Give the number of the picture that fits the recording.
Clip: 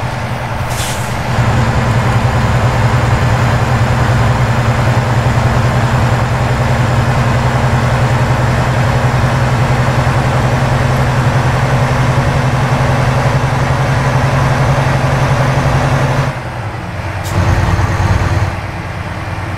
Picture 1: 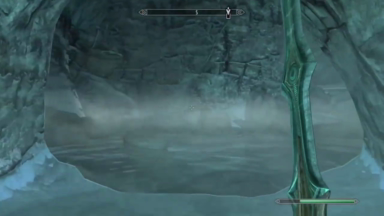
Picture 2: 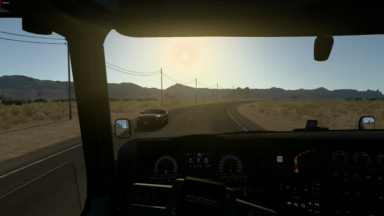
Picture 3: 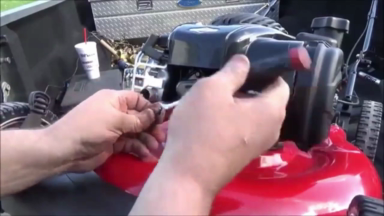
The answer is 2